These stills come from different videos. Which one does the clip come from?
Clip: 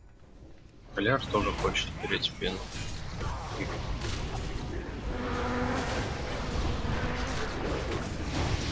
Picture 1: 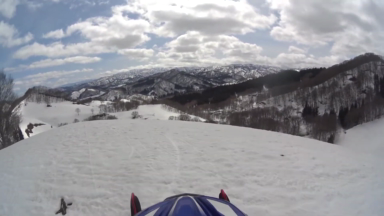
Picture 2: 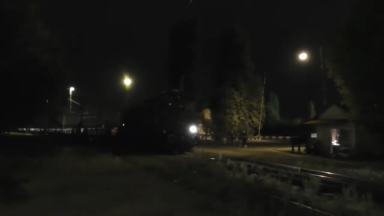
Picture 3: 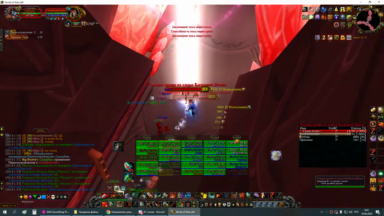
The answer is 3